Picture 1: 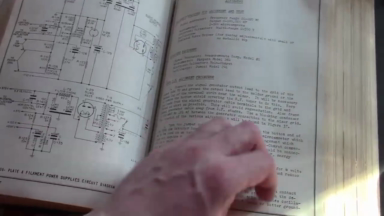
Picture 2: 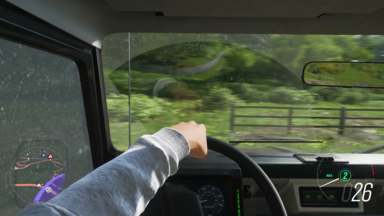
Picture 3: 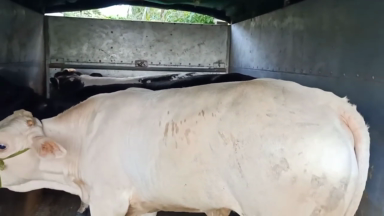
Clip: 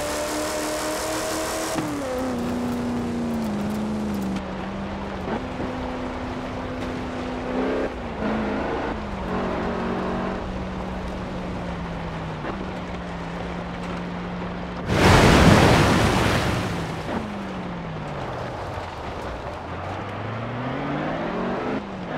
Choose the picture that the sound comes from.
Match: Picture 2